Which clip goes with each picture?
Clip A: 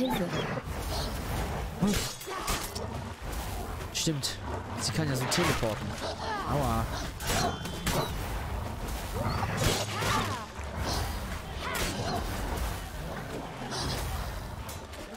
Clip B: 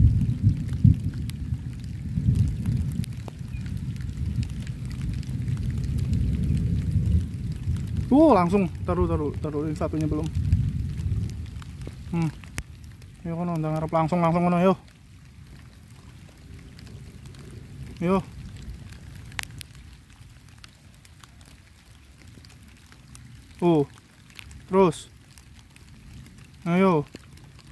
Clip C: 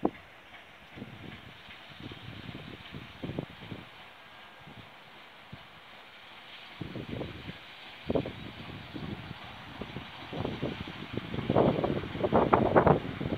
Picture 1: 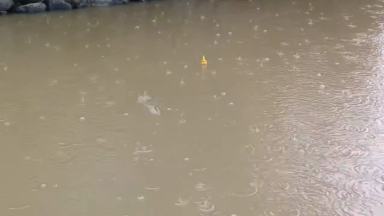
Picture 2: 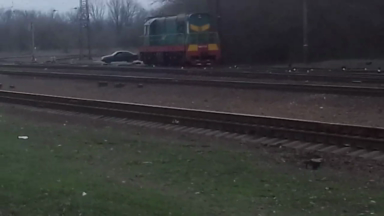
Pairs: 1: B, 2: C